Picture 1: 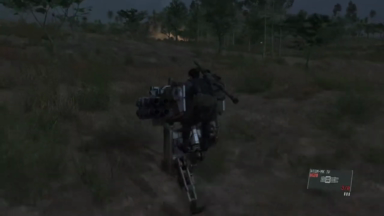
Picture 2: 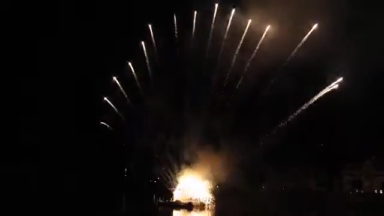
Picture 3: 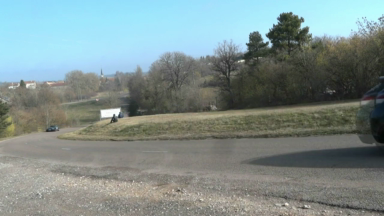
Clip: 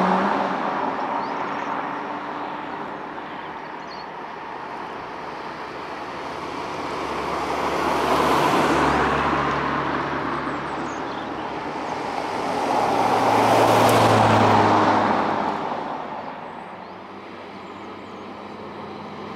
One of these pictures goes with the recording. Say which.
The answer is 3